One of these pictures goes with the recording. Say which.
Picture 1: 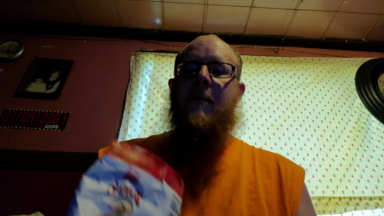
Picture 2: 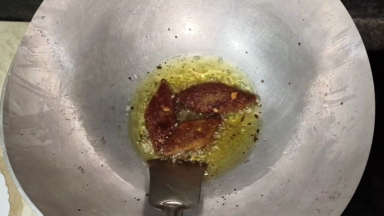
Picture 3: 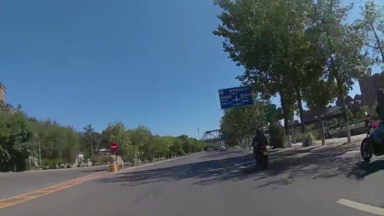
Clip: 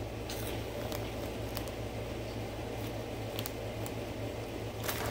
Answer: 1